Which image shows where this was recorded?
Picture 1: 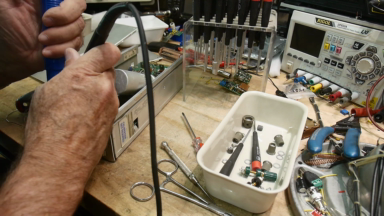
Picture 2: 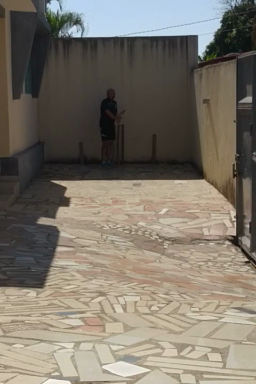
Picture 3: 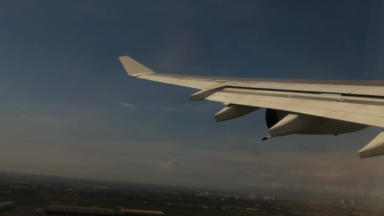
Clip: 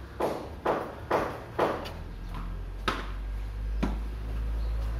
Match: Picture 2